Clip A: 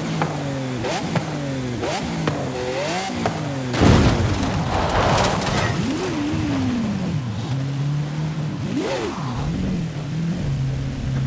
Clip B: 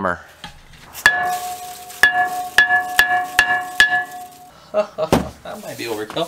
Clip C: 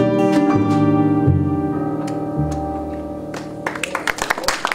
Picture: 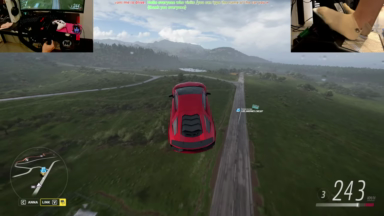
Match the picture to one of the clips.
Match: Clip A